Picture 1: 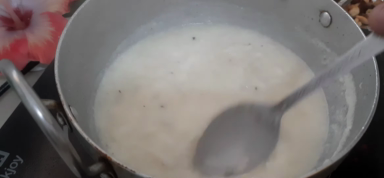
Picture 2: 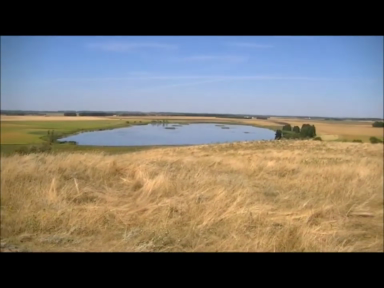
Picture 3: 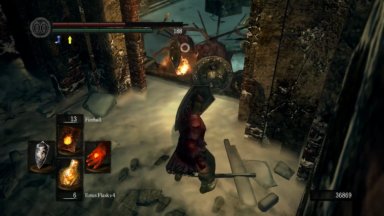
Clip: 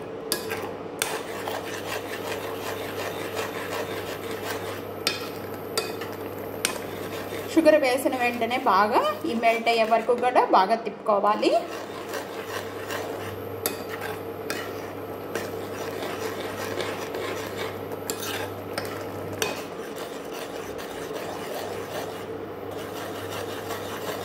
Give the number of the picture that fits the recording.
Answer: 1